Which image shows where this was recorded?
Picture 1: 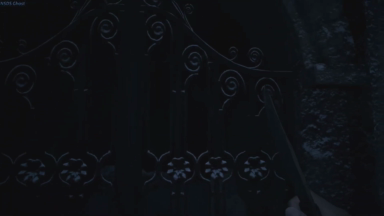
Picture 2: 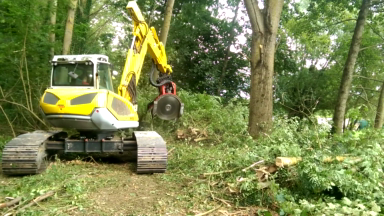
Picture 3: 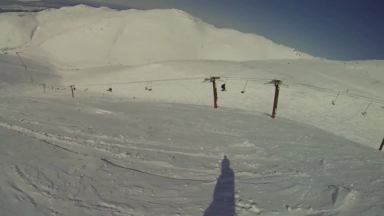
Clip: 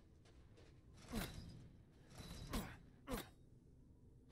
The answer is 1